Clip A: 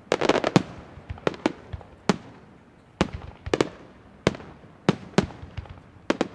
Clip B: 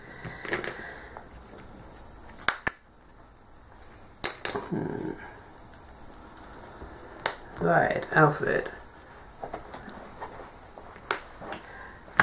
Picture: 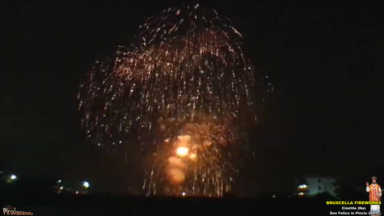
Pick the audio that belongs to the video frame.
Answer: A